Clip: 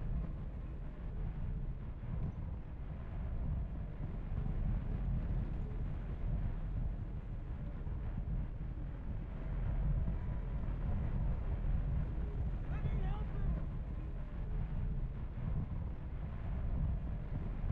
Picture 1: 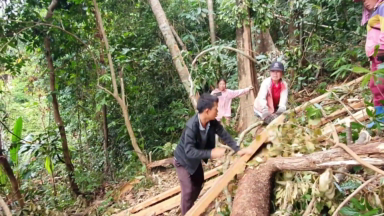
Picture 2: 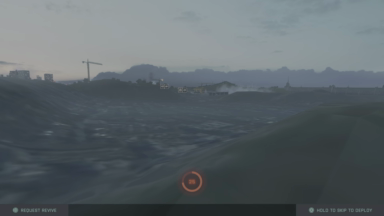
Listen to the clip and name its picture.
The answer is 2